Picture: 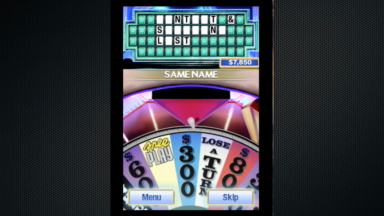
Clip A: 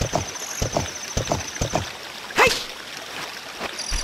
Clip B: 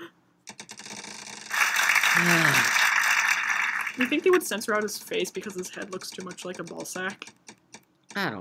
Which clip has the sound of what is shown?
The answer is B